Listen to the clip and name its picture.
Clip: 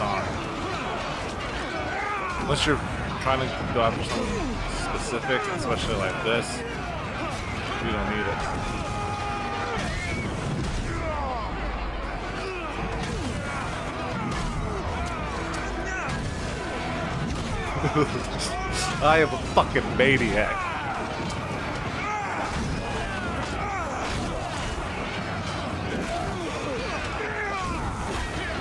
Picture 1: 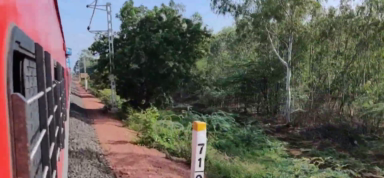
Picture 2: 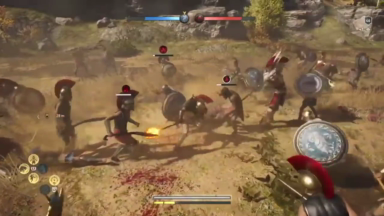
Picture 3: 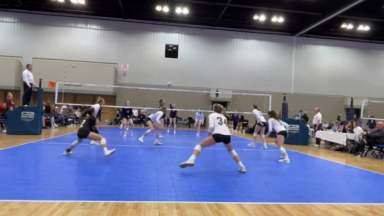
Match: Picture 2